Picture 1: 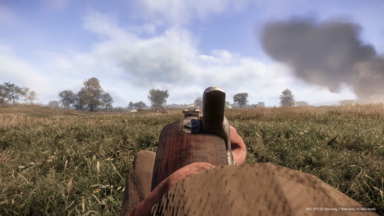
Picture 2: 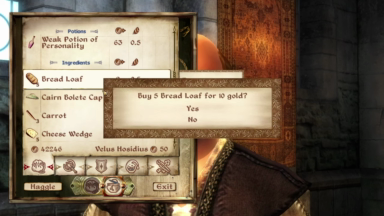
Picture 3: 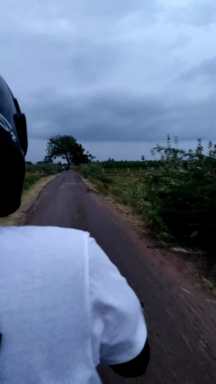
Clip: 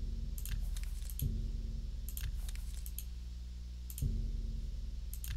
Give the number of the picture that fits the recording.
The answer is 2